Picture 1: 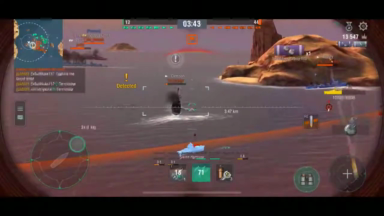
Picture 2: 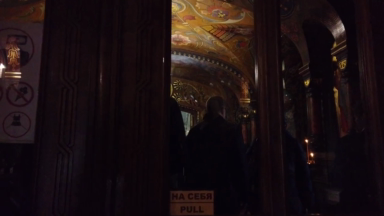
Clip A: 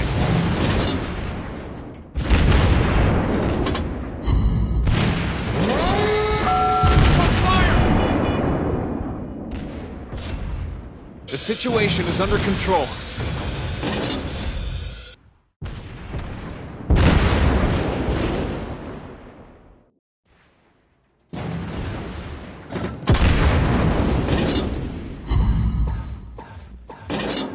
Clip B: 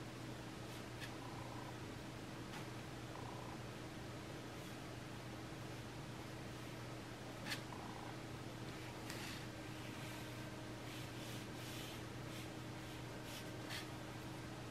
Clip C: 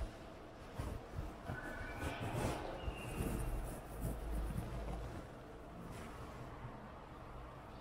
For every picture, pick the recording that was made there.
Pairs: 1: A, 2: C